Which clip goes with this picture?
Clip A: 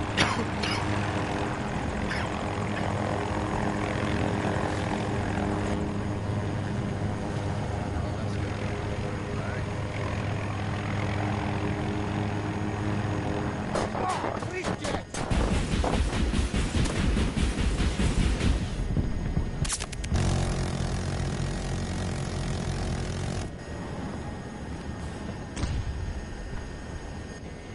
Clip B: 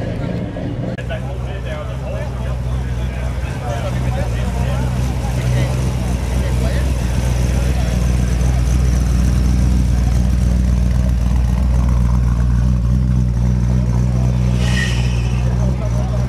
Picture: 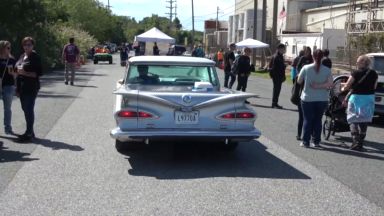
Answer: B